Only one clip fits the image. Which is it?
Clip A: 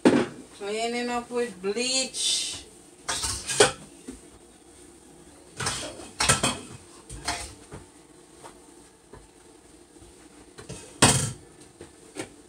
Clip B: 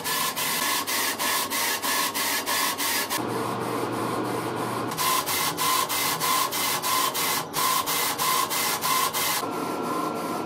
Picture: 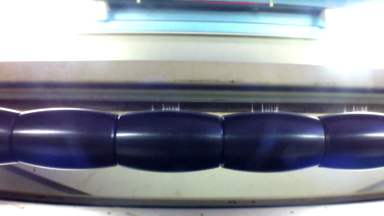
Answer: B